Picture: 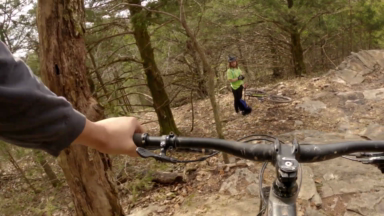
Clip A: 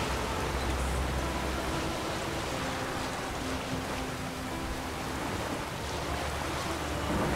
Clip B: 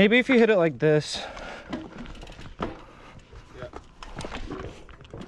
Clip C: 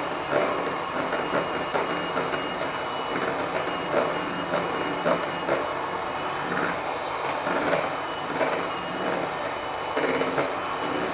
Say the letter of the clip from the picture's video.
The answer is B